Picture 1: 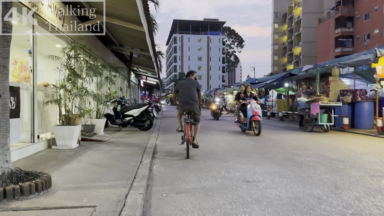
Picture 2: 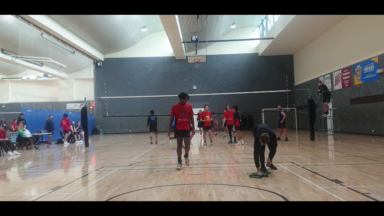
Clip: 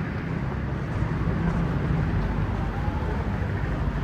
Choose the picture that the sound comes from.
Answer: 1